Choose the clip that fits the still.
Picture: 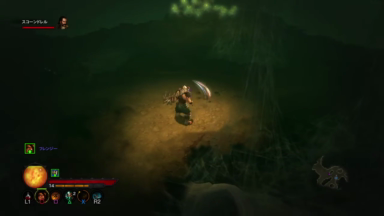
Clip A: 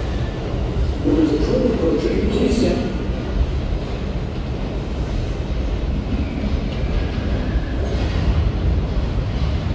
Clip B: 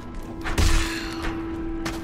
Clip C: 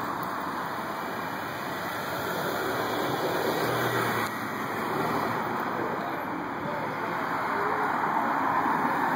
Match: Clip B